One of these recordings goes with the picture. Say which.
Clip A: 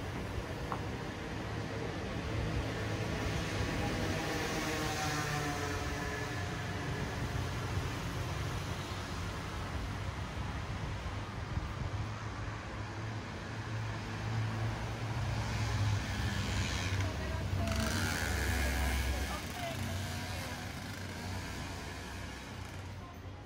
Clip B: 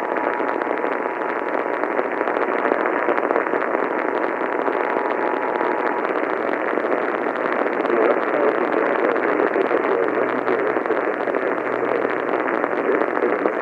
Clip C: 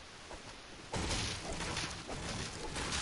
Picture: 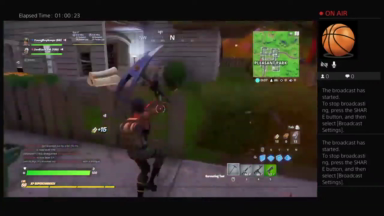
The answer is C